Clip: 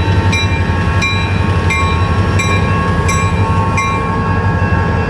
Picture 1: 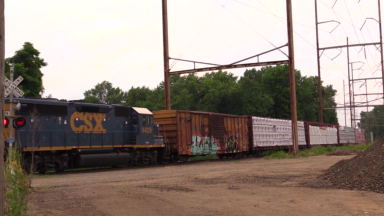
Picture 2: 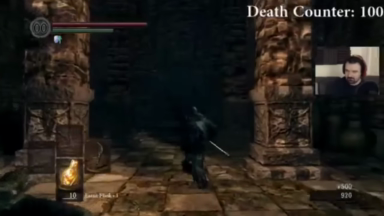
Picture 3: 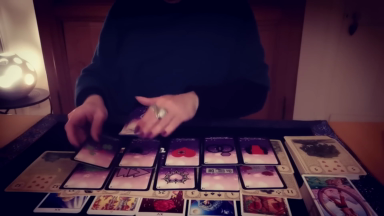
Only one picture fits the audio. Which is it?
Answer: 1